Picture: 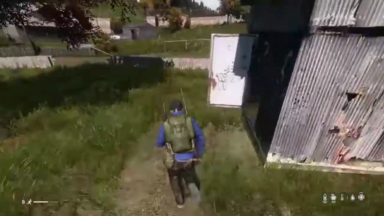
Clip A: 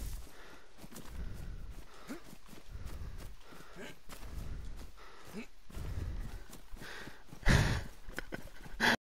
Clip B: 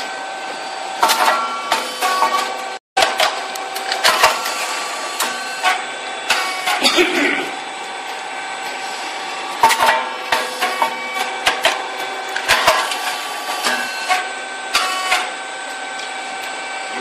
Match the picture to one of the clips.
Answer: A